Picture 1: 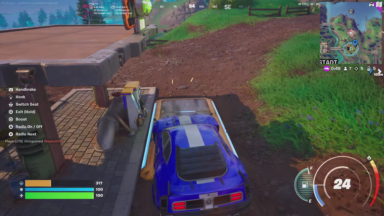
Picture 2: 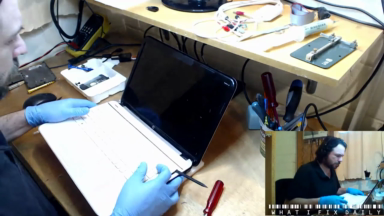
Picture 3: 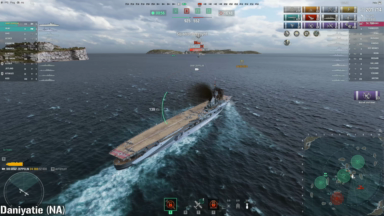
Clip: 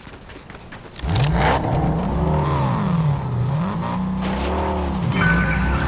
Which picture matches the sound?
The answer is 1